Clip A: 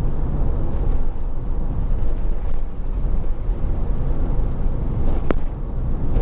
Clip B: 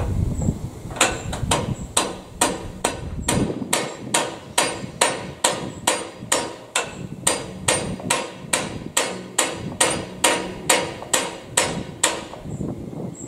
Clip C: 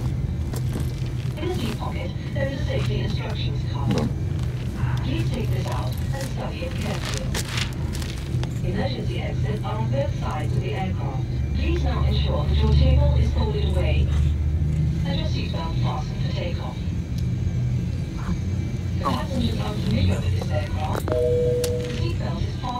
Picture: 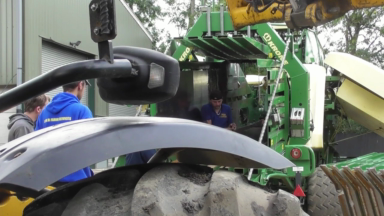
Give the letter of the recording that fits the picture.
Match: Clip B